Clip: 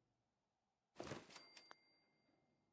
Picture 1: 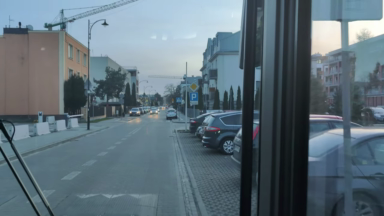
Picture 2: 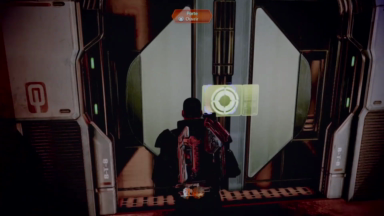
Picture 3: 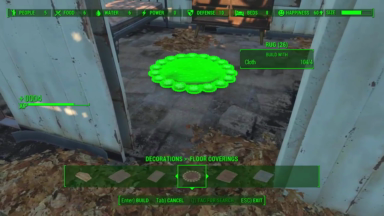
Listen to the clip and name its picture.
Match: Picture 3